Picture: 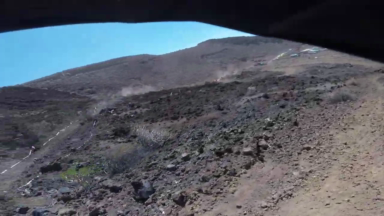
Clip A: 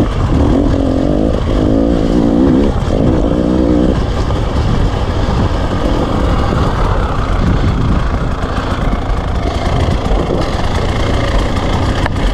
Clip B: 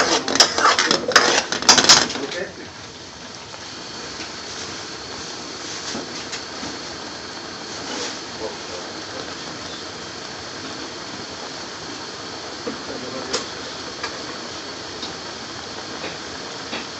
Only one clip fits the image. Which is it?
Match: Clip A